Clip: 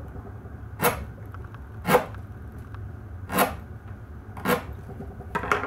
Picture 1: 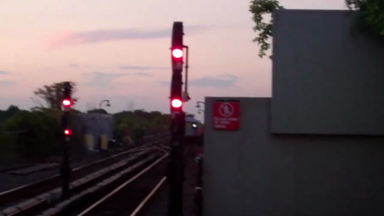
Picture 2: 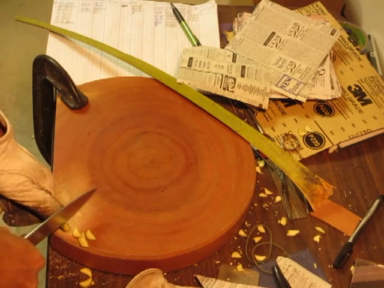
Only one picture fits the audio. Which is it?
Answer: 2